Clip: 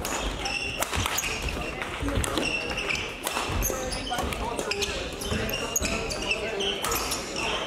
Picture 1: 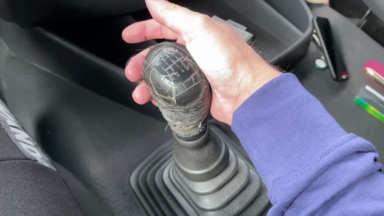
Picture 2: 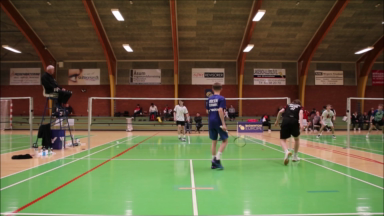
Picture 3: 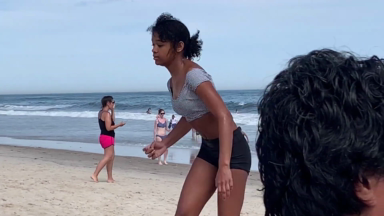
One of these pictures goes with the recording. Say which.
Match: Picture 2